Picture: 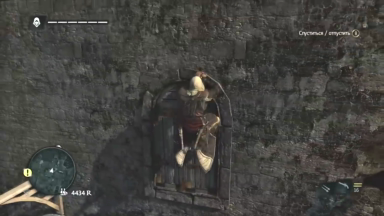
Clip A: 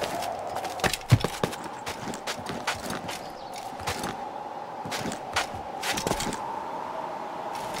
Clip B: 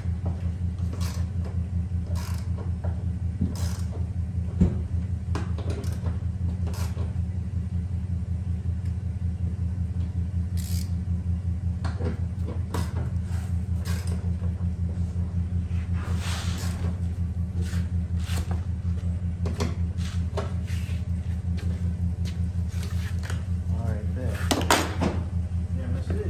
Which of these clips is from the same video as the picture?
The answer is A